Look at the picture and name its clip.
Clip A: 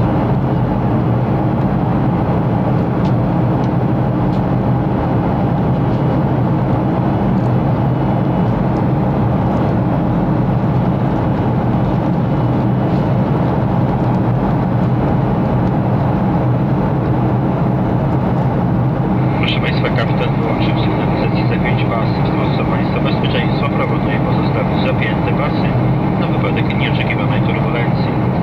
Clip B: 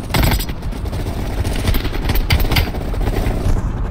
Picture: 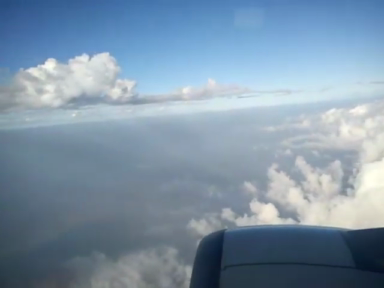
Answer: A